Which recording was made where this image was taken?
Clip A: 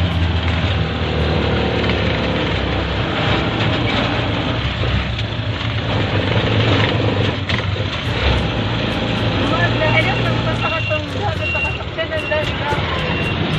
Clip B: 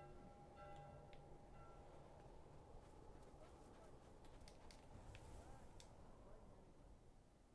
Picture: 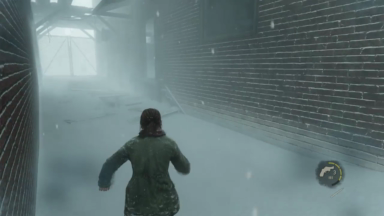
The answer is B